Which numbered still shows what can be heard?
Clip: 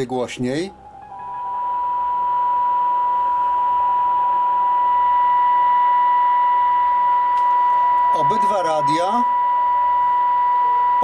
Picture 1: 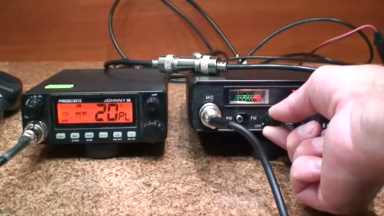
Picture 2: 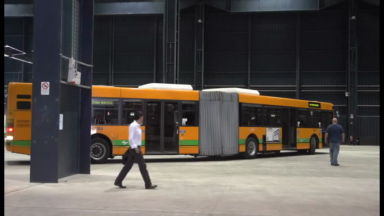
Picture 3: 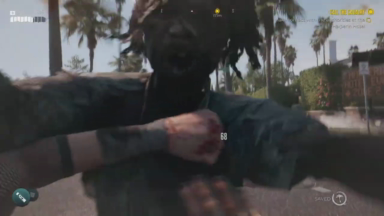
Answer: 1